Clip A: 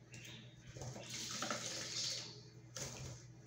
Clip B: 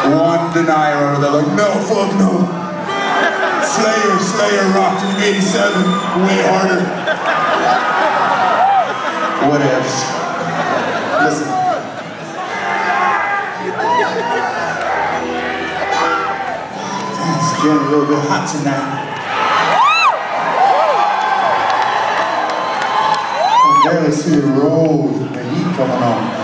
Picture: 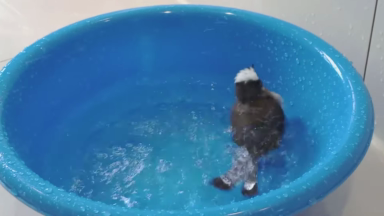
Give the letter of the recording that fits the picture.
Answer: A